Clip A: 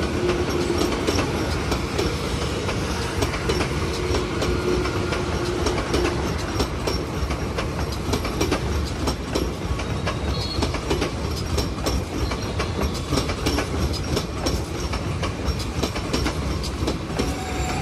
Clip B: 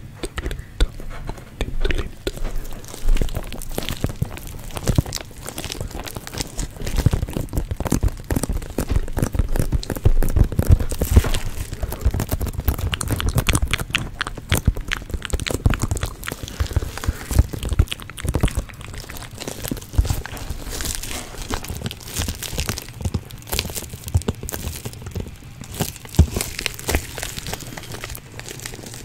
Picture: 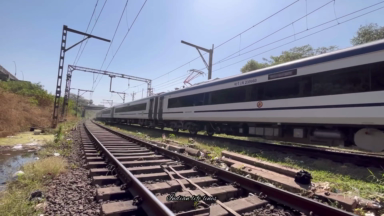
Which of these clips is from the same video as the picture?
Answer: A